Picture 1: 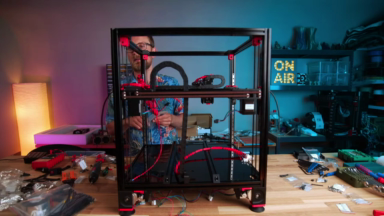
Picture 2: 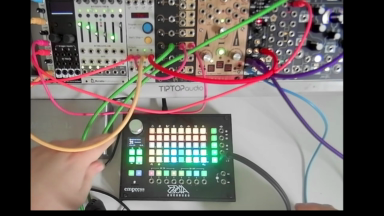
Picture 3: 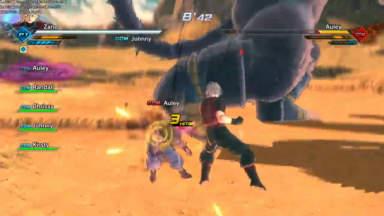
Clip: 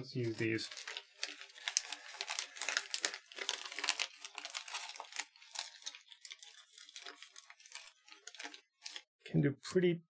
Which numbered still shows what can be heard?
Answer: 1